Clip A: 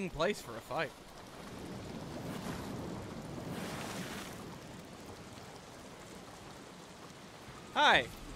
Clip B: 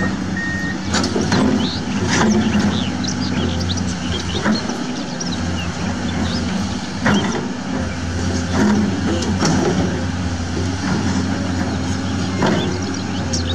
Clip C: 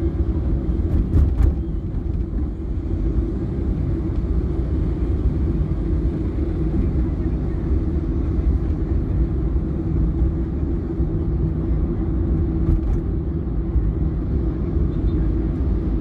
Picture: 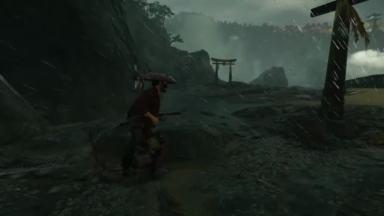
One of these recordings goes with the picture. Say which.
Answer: A